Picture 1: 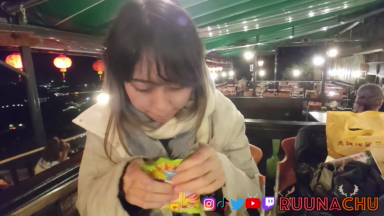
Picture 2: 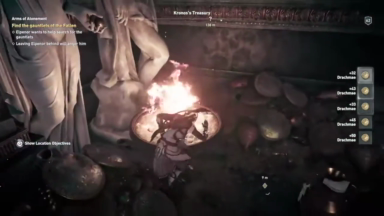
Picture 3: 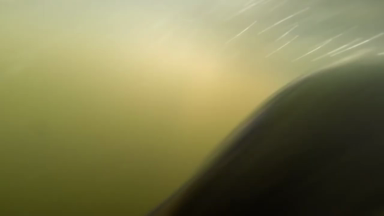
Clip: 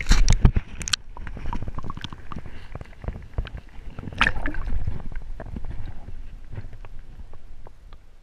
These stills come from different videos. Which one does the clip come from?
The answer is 3